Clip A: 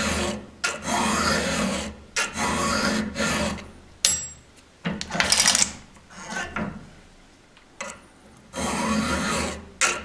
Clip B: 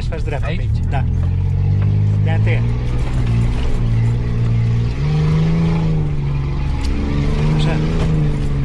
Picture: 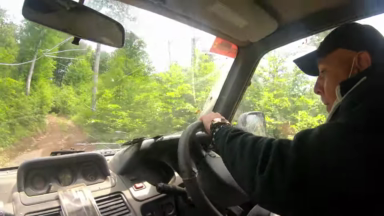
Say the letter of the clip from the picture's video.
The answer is B